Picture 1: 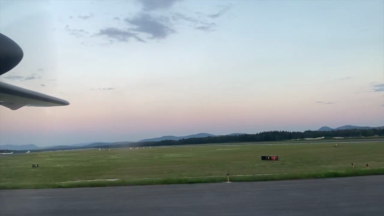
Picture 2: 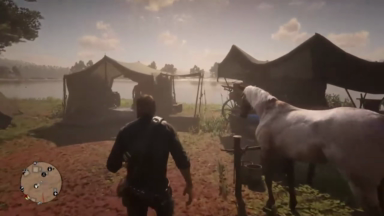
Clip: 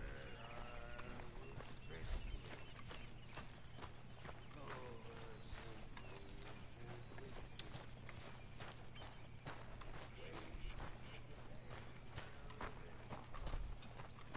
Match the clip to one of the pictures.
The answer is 2